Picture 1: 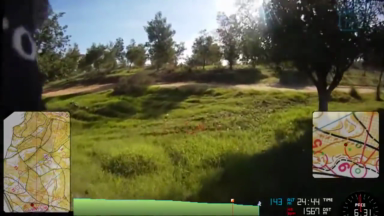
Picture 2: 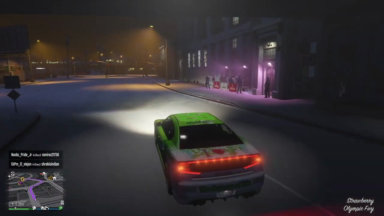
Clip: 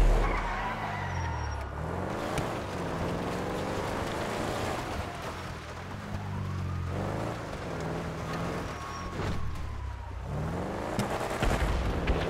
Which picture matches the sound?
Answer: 2